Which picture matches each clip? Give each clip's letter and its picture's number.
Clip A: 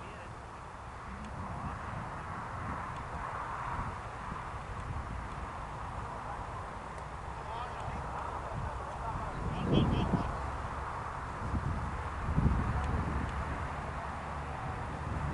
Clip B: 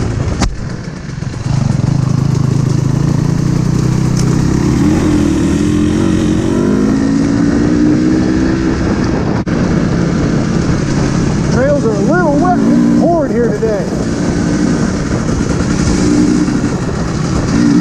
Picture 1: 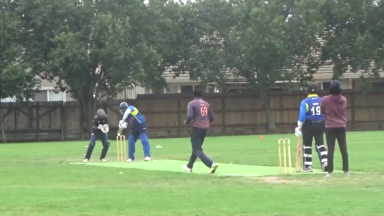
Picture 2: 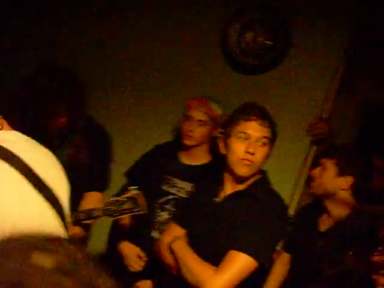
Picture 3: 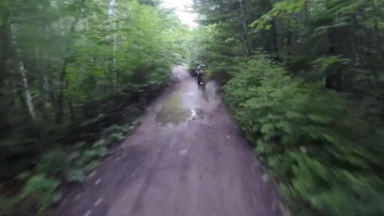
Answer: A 1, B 3